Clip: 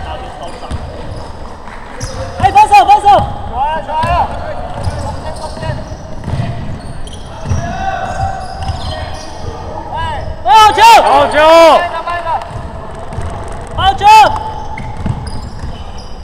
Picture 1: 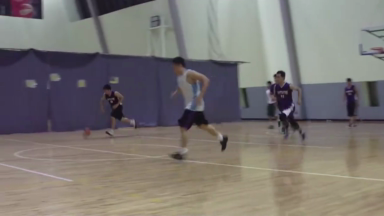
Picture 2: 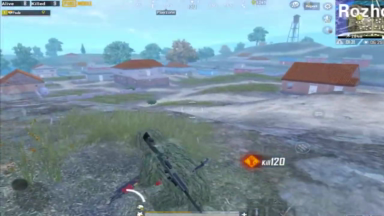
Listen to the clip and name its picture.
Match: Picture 1